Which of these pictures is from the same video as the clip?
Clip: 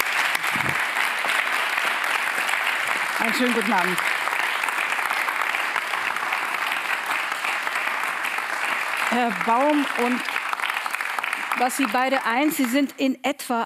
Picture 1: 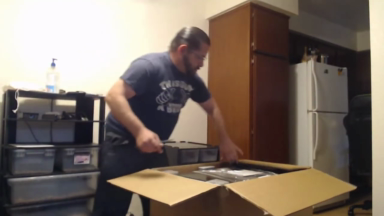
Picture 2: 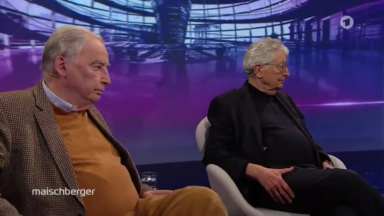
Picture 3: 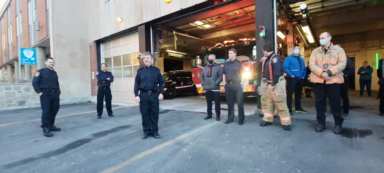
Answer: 2